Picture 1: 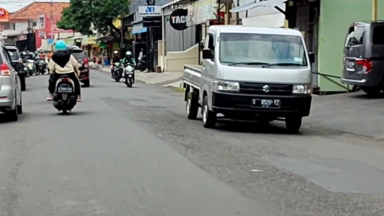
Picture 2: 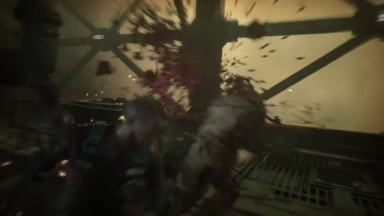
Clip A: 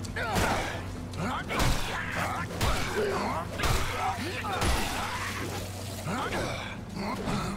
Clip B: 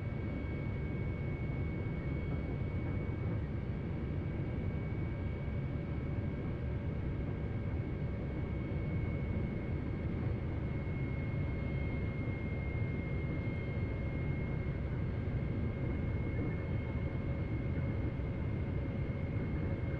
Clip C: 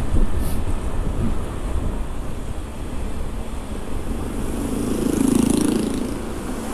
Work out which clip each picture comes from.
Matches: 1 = C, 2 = A